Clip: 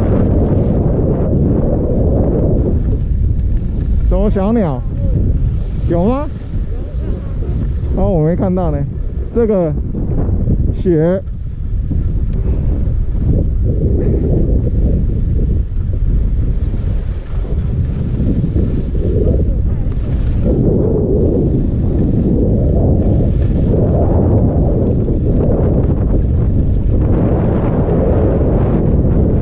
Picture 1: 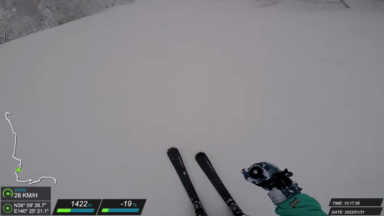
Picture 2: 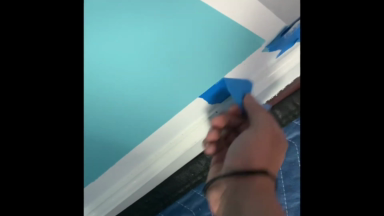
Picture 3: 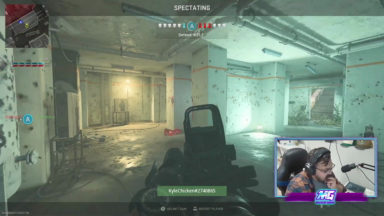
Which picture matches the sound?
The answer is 1